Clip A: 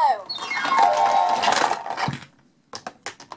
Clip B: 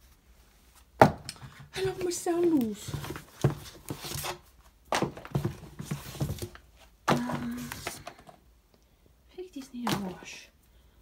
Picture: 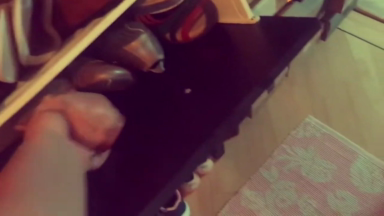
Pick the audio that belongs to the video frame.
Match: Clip B